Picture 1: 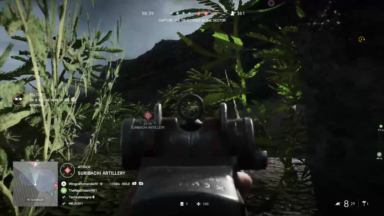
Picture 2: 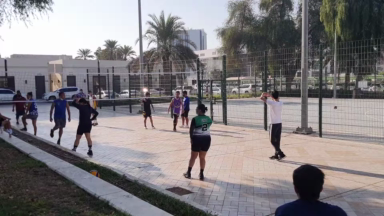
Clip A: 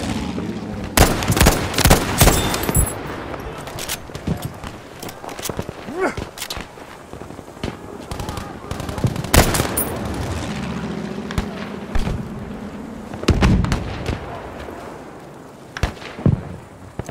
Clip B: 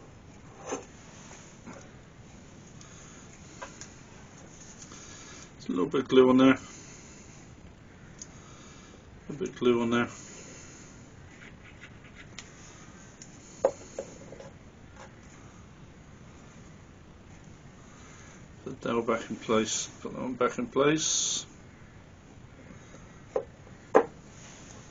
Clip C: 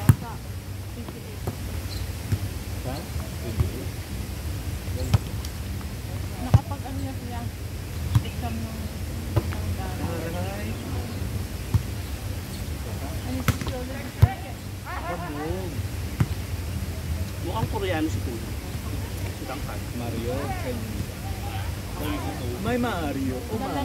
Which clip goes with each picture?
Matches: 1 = A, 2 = C